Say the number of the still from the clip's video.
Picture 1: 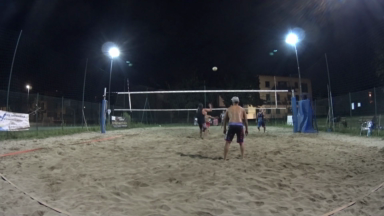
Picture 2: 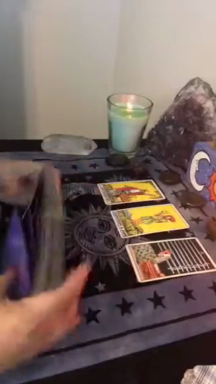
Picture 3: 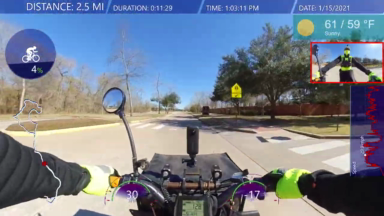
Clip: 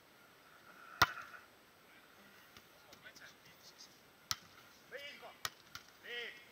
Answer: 1